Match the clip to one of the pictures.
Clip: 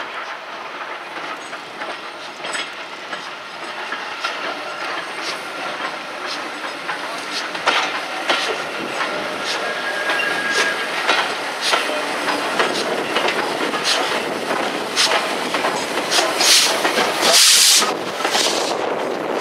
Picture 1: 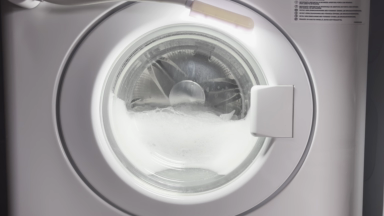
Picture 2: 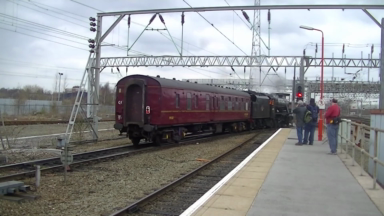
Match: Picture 2